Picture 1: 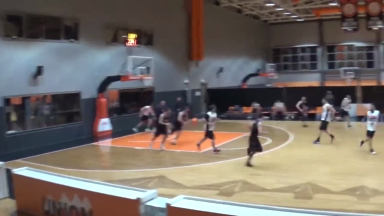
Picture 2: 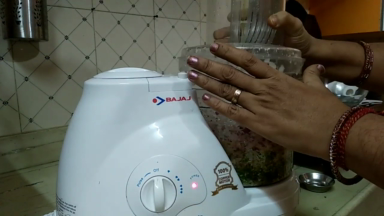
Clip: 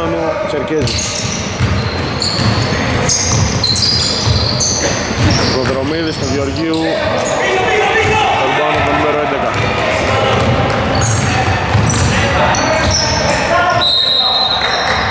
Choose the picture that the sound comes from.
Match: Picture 1